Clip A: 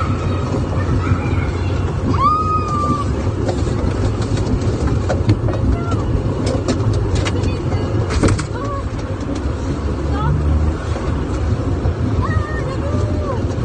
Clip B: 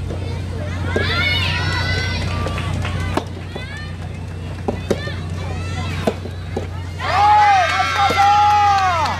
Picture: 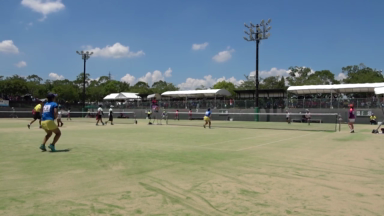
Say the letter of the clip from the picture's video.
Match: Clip B